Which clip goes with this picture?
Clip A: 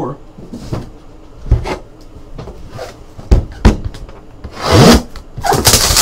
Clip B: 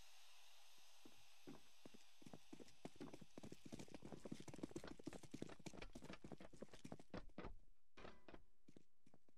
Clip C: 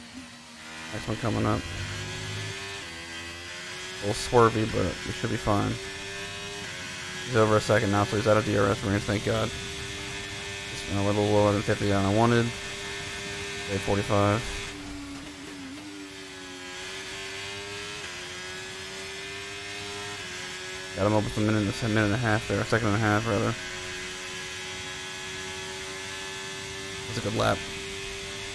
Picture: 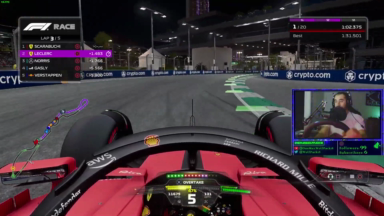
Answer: C